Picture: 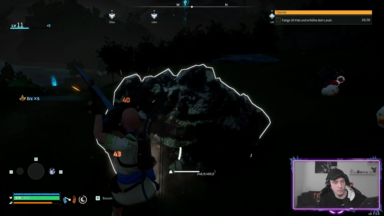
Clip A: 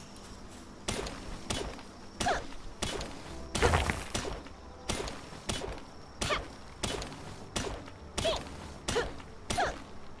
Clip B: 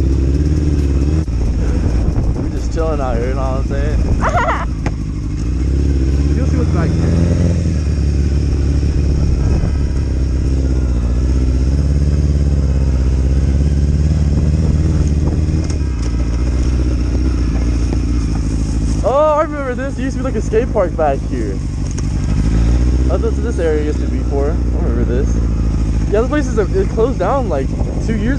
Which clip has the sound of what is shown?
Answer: A